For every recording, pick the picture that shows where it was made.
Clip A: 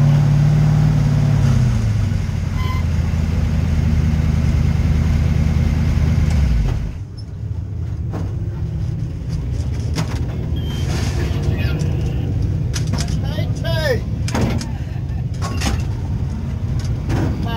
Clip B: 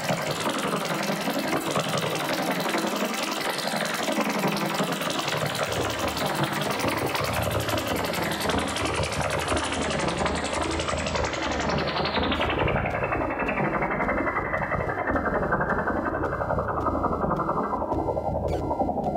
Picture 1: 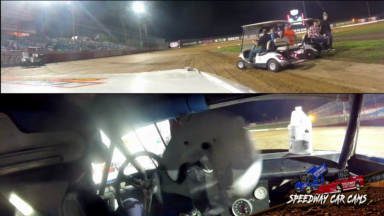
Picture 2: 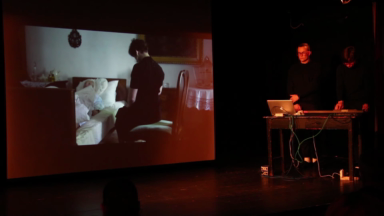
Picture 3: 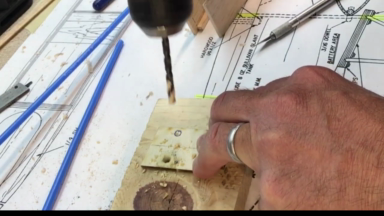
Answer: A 1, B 2